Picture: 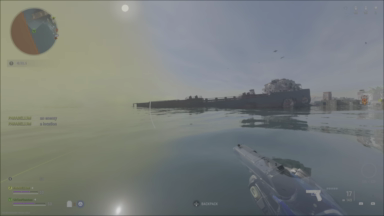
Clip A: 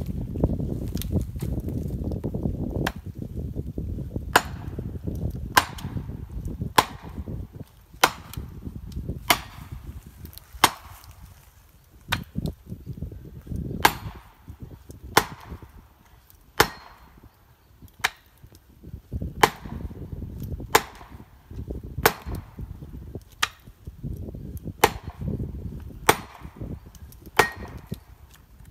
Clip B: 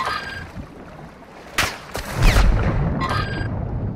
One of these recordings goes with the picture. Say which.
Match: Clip B